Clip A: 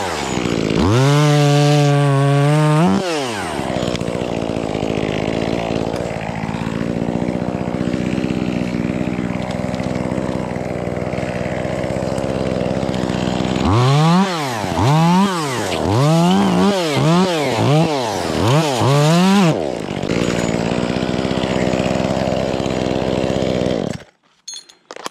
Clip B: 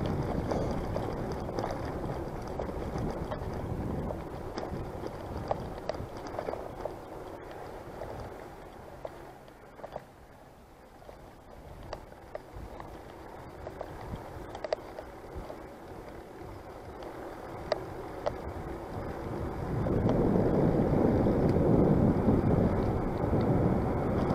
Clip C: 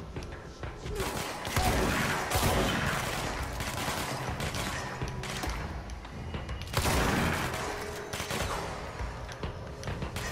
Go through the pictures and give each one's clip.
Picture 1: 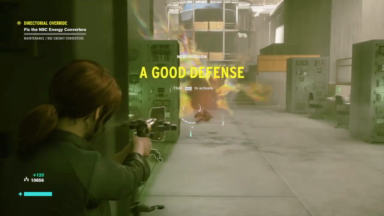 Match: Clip C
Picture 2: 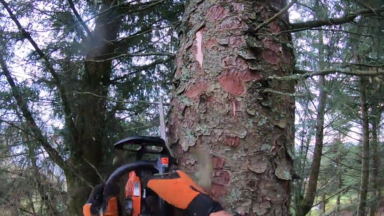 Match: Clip A